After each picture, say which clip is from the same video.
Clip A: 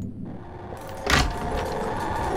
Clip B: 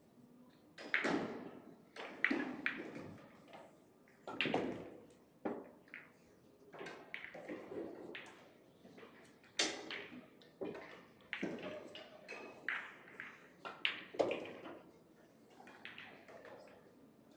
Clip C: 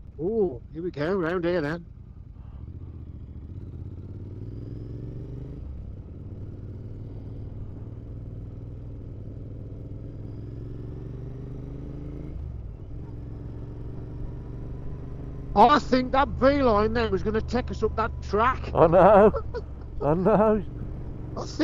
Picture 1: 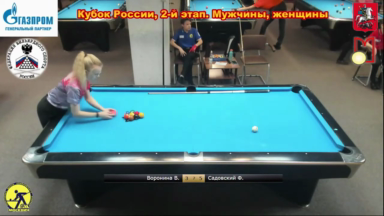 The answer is B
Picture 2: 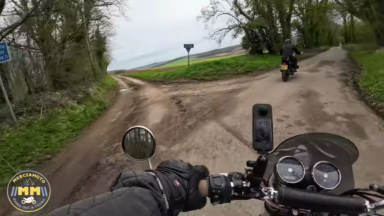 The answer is C